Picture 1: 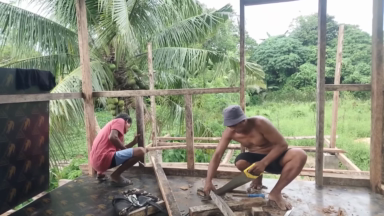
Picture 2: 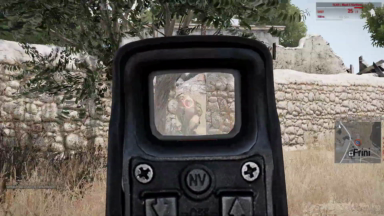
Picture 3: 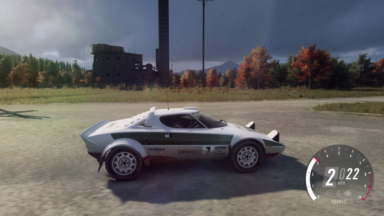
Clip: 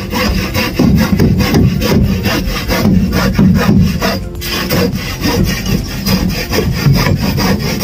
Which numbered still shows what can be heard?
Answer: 1